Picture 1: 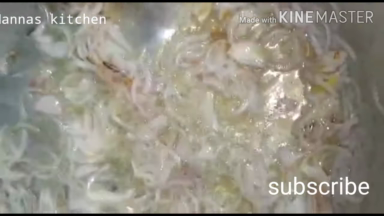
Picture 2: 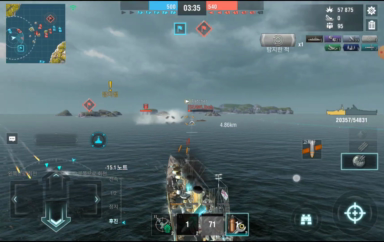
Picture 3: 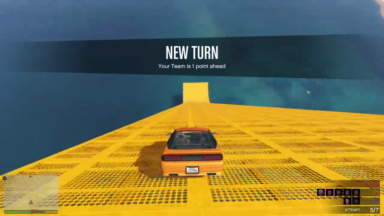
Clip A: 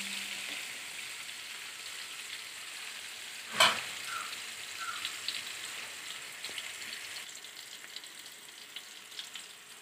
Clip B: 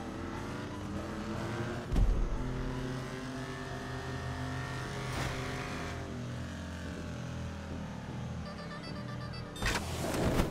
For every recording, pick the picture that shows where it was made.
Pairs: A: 1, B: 3